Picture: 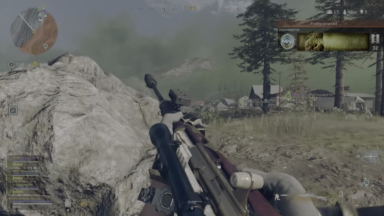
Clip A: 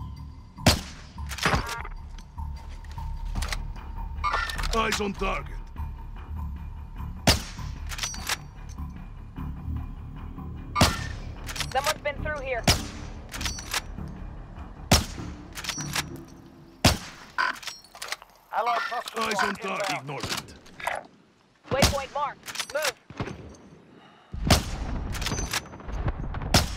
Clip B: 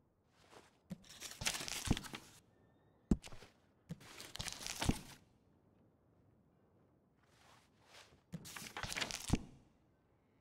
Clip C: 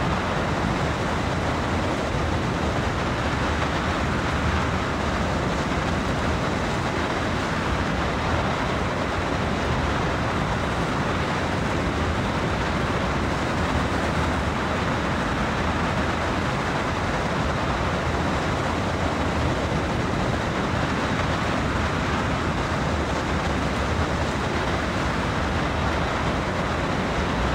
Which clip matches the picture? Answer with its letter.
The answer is A